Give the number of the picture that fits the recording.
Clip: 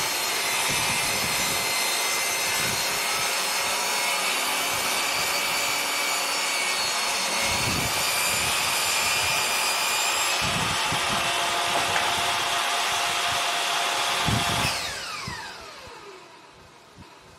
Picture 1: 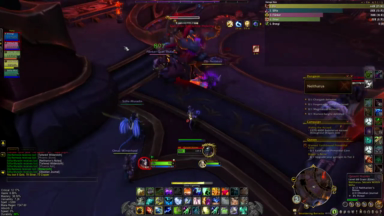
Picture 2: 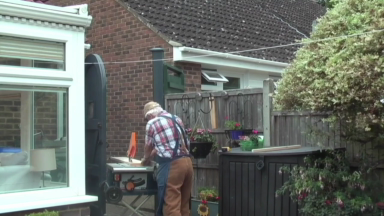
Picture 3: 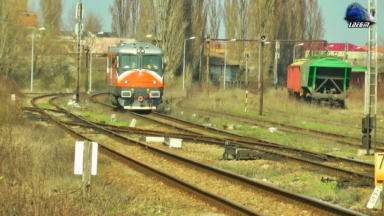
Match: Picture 2